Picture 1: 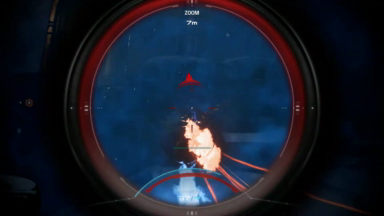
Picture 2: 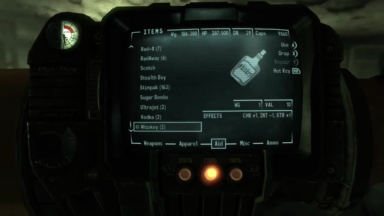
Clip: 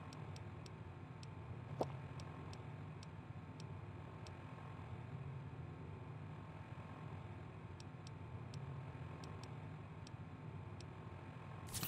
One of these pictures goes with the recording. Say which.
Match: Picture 2